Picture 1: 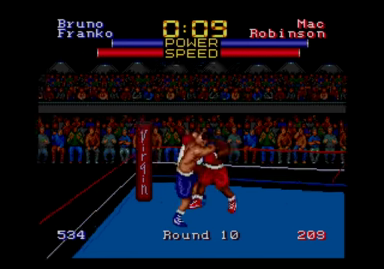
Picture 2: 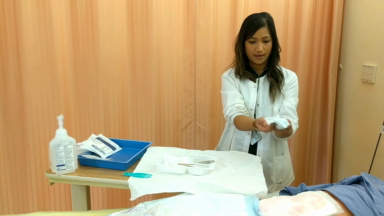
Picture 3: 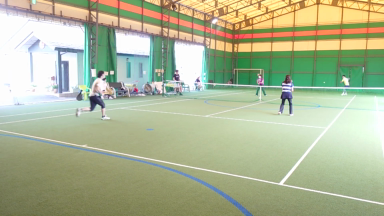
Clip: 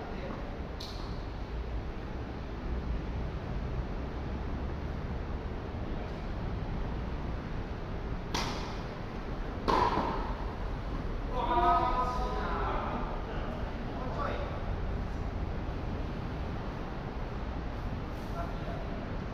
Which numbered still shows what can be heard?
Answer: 3